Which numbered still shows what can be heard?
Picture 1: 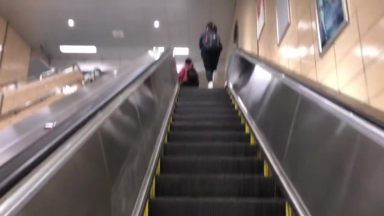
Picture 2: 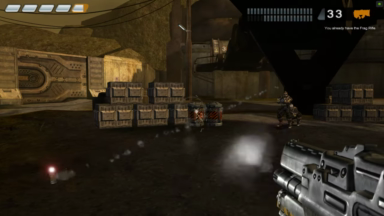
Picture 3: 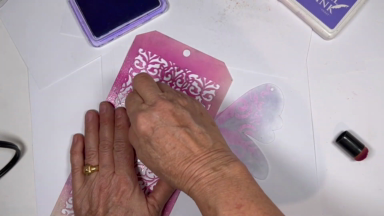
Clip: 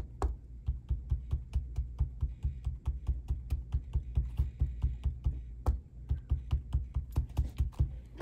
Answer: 3